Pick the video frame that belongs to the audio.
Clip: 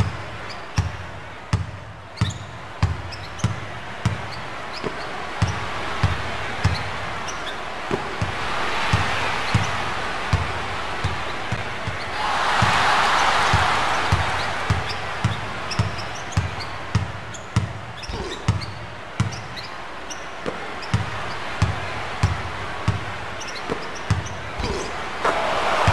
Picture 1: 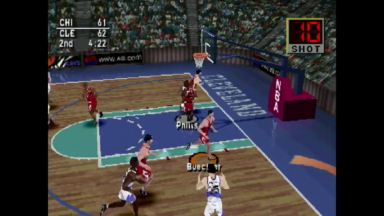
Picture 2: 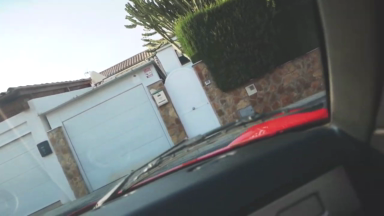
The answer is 1